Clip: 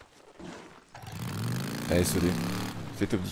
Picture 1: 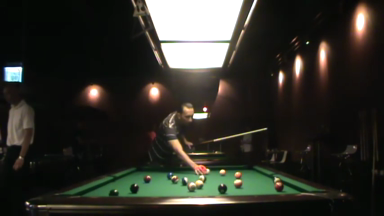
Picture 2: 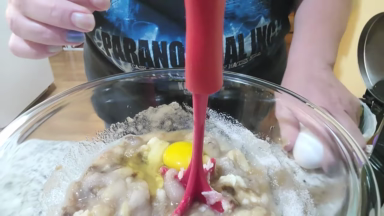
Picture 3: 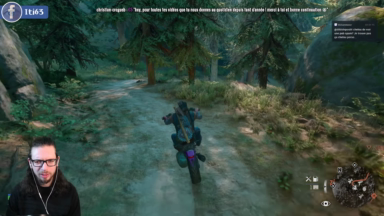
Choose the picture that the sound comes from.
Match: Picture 3